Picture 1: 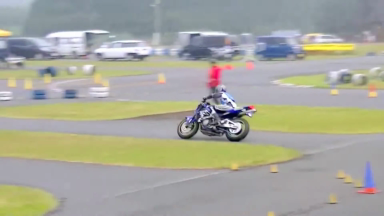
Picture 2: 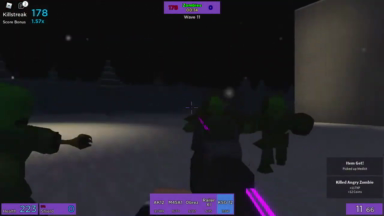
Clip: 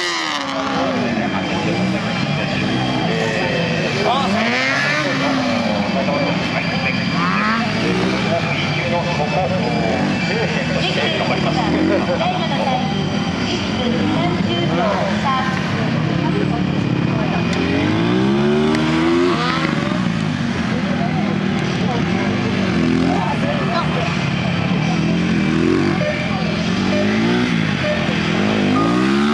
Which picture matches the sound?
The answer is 1